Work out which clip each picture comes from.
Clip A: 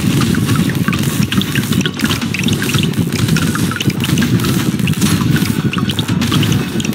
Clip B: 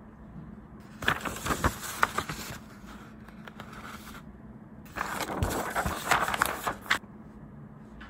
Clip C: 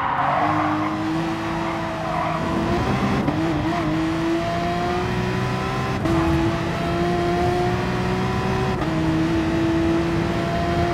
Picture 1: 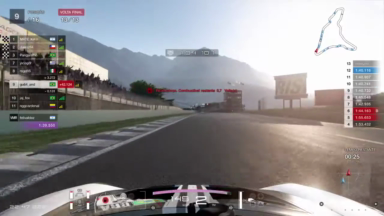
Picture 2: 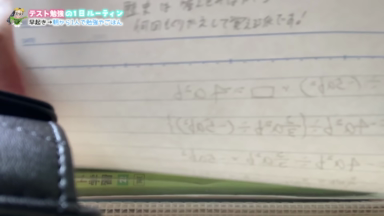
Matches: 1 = C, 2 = B